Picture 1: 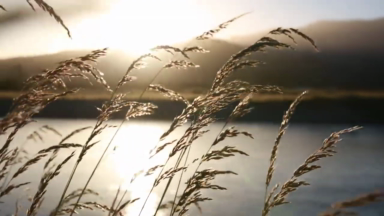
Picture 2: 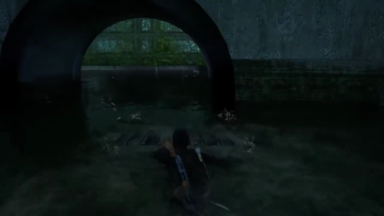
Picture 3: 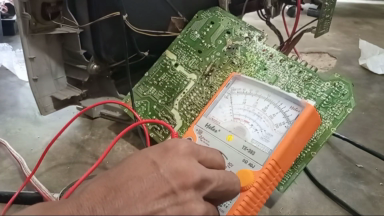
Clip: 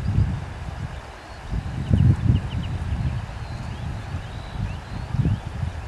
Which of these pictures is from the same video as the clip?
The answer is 1